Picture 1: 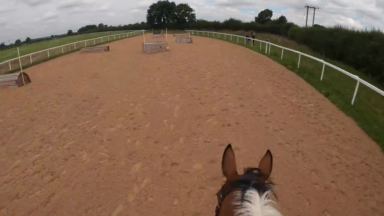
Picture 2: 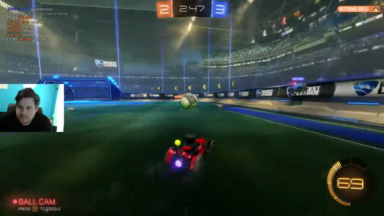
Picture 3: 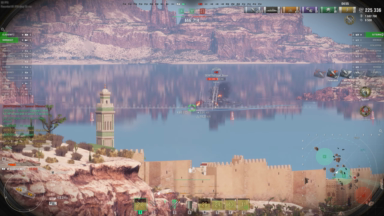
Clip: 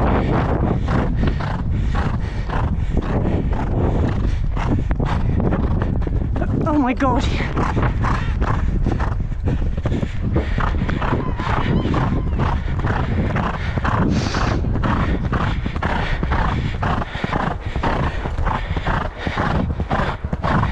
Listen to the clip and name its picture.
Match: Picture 1